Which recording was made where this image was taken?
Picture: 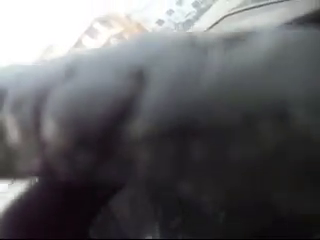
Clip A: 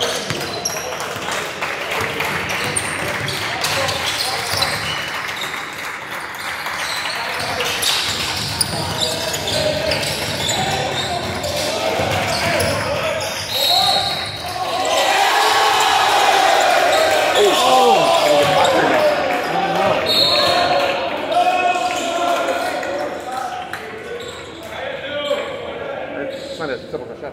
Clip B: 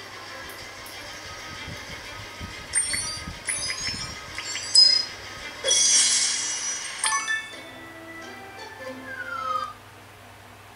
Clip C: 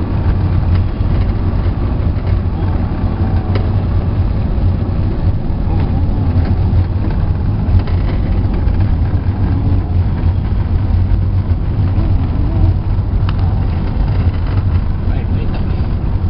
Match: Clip C